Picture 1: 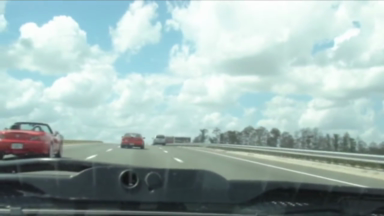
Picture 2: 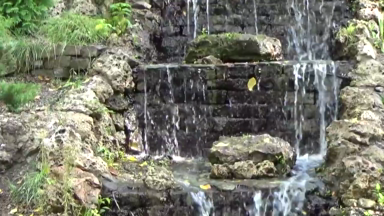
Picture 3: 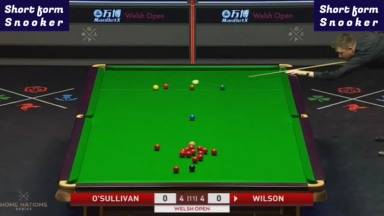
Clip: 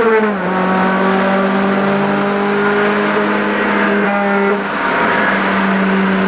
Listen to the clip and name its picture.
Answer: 1